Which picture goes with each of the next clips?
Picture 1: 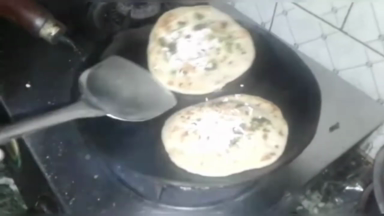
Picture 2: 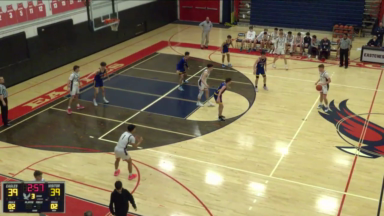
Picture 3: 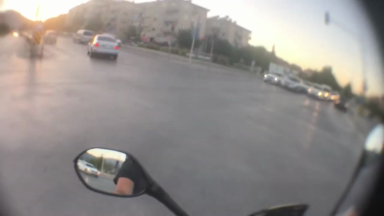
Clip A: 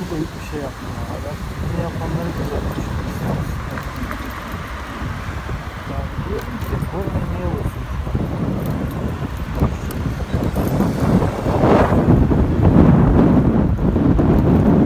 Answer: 3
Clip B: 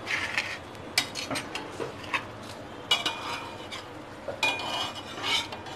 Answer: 1